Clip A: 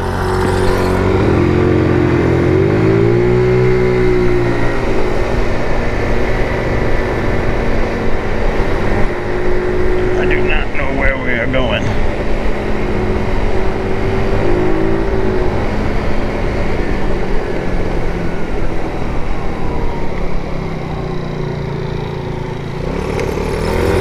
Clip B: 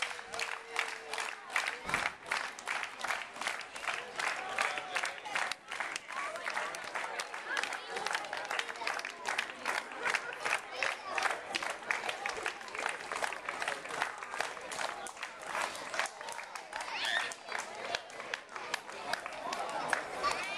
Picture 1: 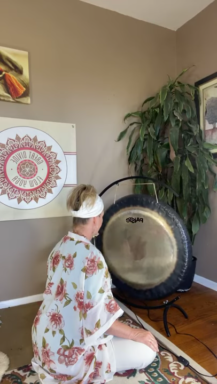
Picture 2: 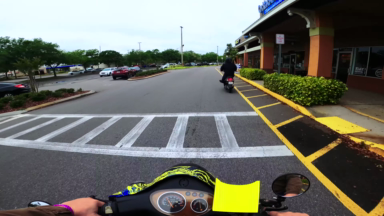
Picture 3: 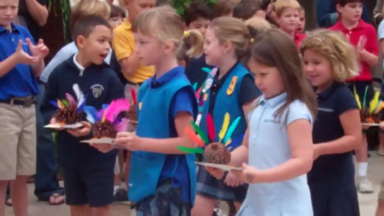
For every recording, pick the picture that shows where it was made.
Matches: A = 2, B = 3